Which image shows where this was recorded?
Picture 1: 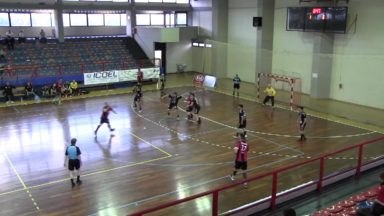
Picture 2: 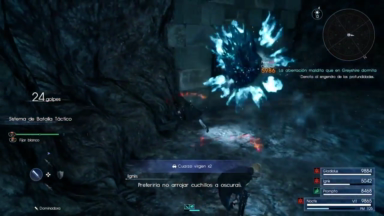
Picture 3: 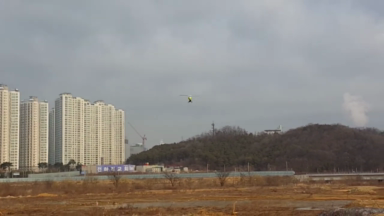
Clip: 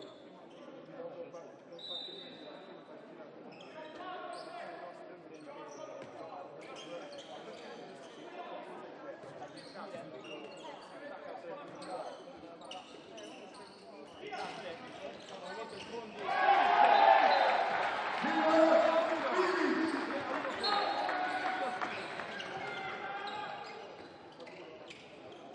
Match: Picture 1